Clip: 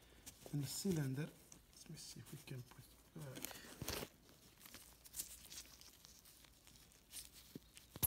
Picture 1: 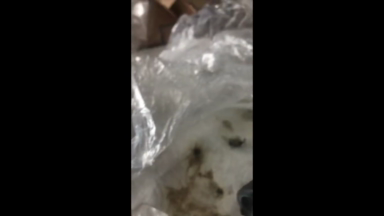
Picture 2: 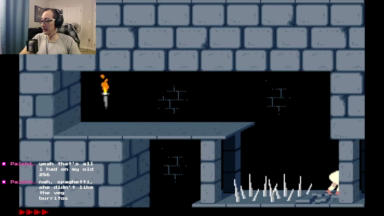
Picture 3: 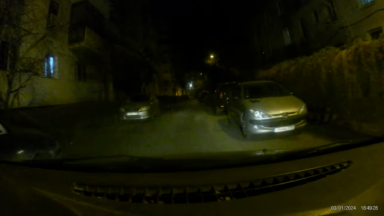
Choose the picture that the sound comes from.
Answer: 1